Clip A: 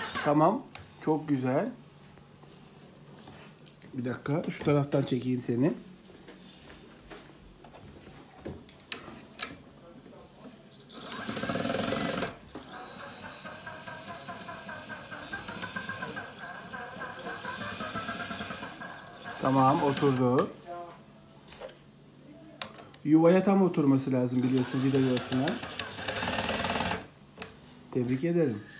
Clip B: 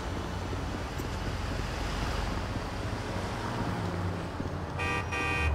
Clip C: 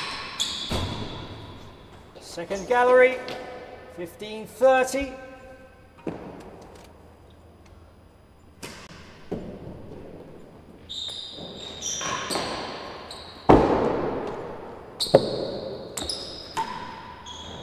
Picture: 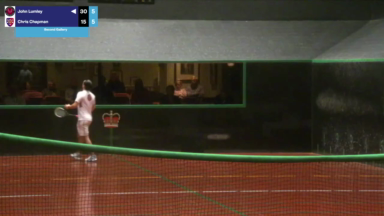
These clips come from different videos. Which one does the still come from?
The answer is C